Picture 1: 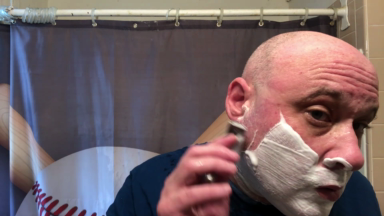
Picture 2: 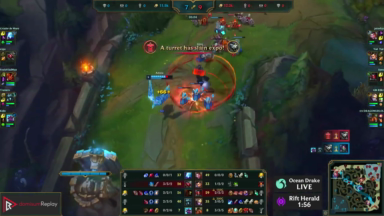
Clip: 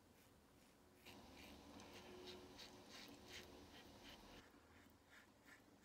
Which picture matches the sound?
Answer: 1